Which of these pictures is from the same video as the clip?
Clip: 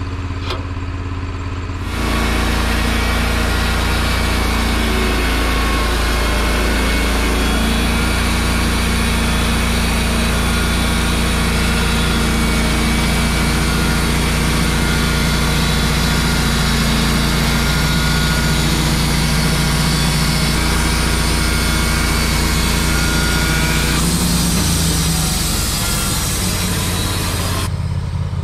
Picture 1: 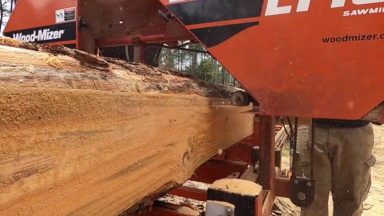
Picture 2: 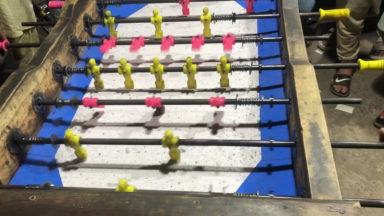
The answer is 1